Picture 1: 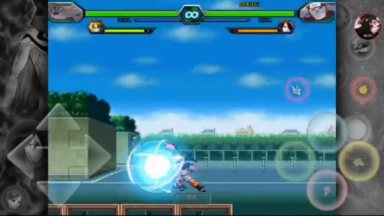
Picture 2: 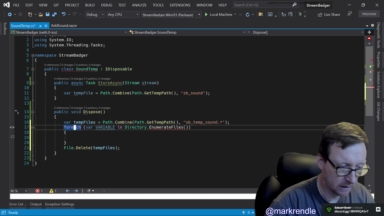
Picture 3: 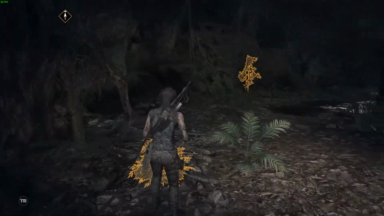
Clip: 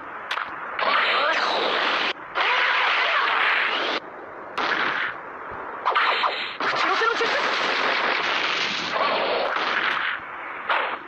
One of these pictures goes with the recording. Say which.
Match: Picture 1